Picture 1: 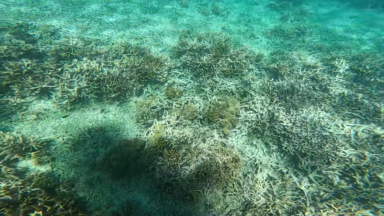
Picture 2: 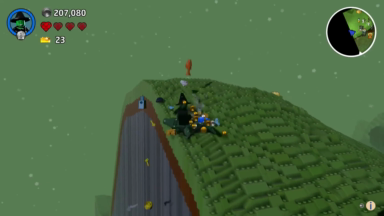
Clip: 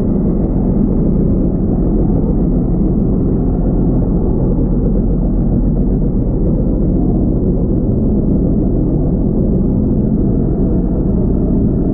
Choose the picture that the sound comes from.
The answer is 1